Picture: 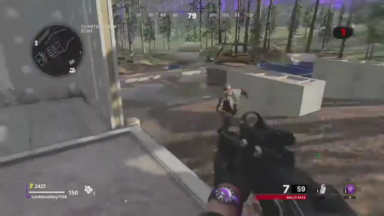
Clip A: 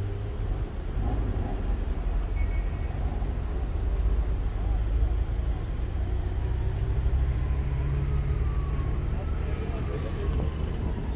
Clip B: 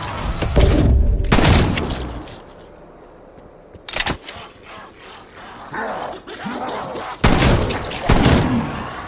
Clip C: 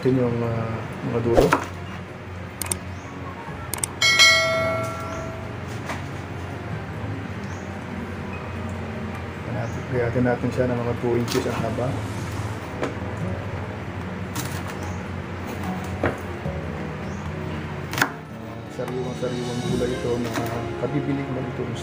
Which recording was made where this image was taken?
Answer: B